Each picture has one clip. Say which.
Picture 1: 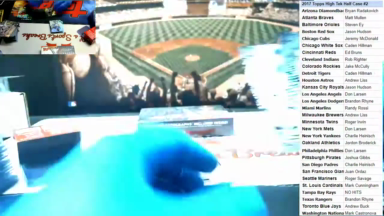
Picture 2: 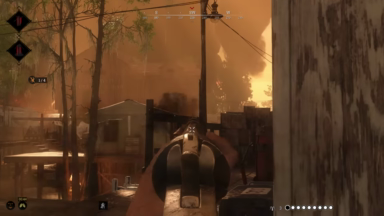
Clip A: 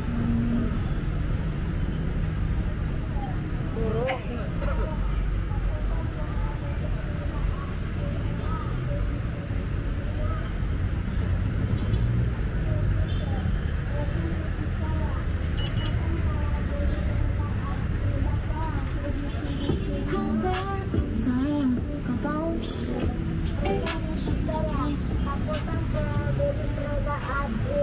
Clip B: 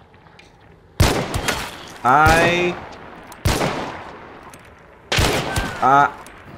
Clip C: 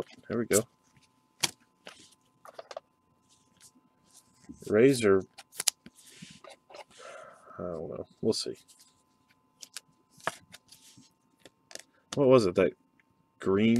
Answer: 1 C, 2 B